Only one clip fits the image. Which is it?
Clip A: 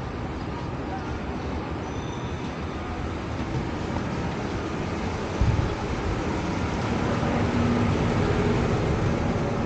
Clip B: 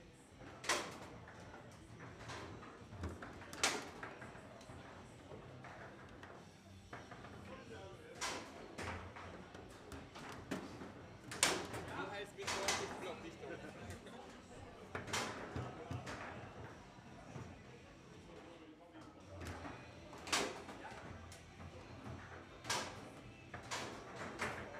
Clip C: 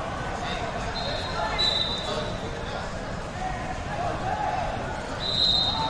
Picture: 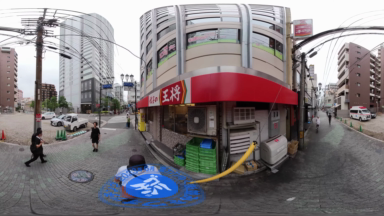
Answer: A